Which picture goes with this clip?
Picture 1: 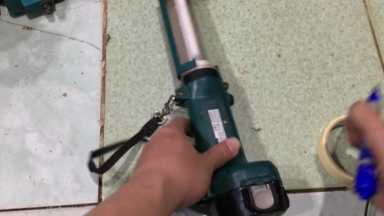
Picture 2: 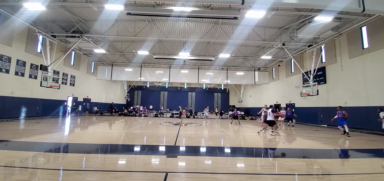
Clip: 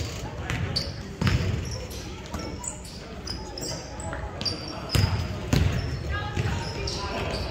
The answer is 2